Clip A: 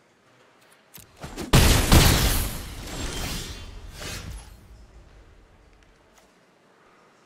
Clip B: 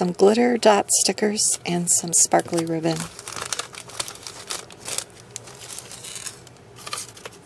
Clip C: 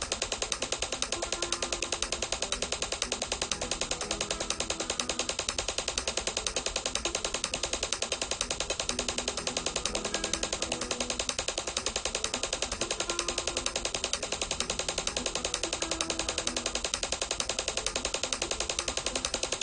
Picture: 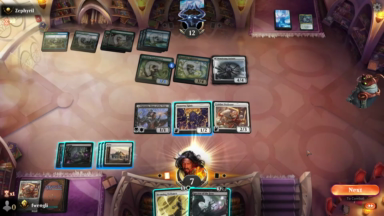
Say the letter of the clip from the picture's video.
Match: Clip A